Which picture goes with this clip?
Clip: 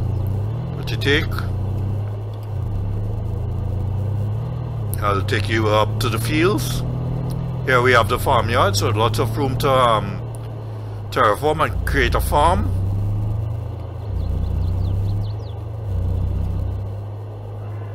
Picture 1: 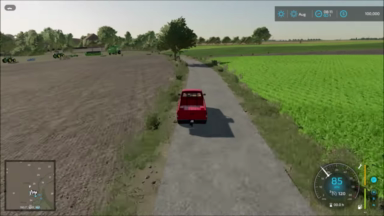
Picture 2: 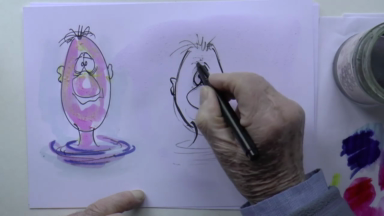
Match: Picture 1